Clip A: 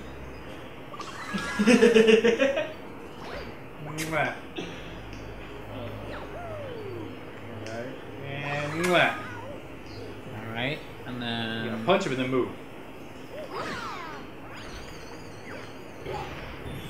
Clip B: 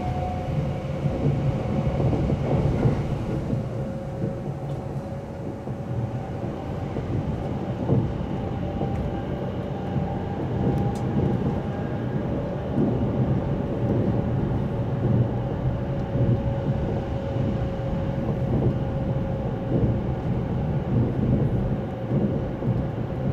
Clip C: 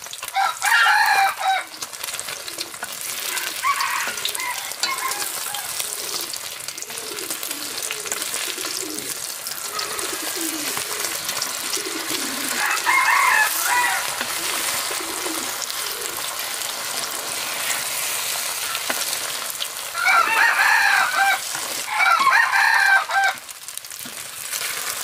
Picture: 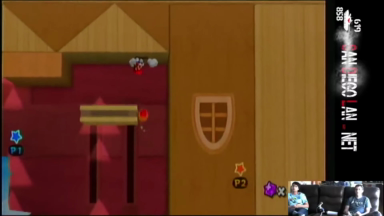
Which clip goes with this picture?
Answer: A